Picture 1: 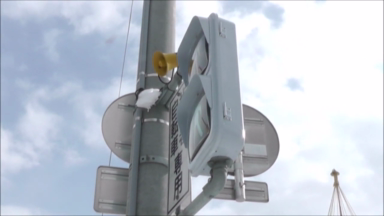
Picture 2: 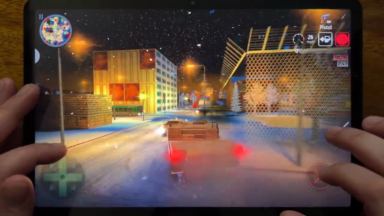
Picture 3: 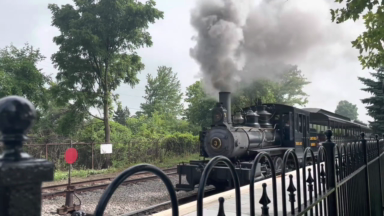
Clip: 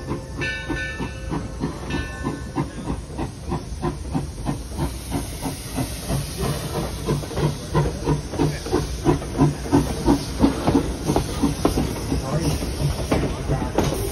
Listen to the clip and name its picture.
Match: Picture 3